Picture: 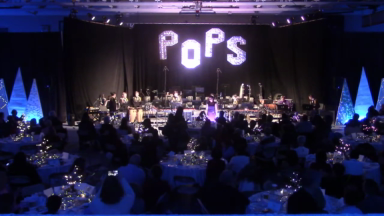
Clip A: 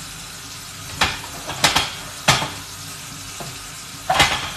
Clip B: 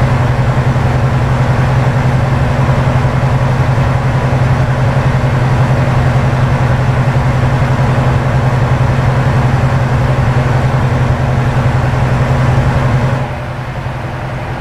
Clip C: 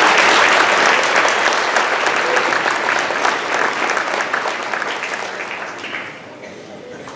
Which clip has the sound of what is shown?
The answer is C